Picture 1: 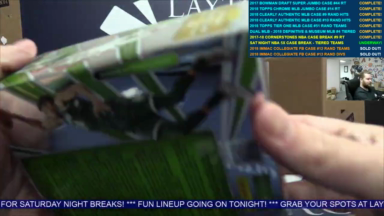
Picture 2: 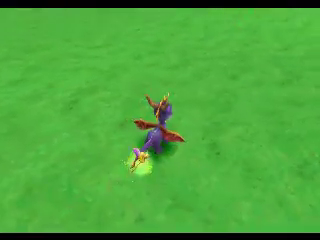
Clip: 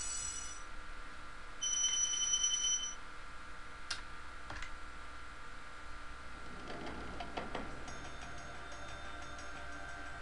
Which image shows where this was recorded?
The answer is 2